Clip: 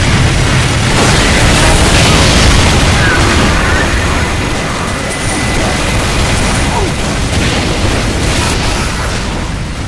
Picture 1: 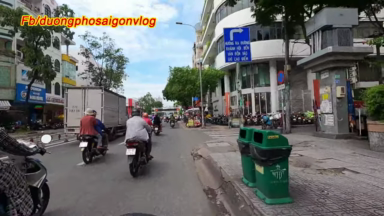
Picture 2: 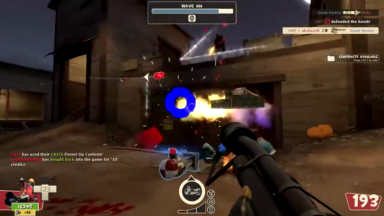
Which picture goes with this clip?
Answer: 2